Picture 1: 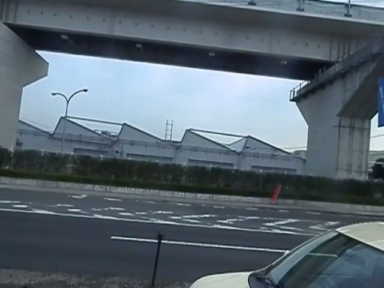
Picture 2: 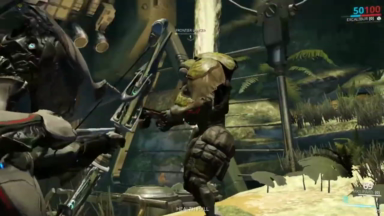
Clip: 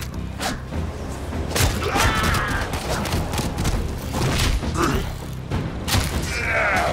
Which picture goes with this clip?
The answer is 2